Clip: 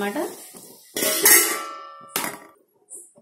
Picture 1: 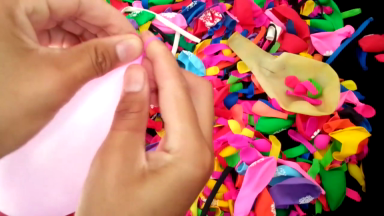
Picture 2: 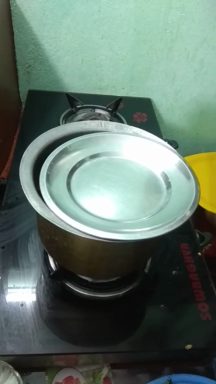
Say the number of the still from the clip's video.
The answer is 2